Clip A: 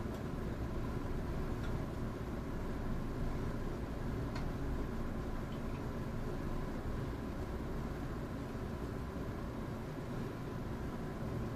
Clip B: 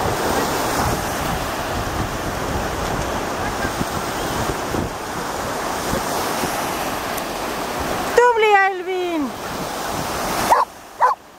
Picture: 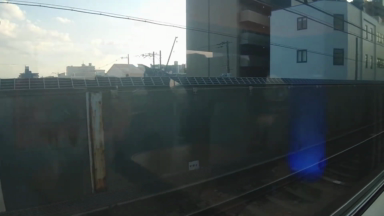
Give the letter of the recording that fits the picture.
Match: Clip A